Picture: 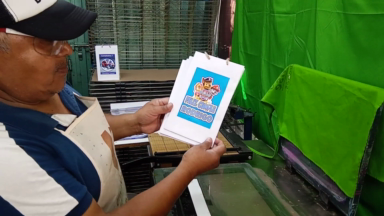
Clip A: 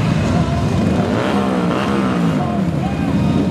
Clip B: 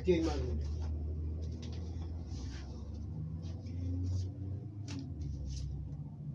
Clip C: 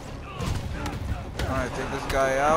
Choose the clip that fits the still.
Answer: B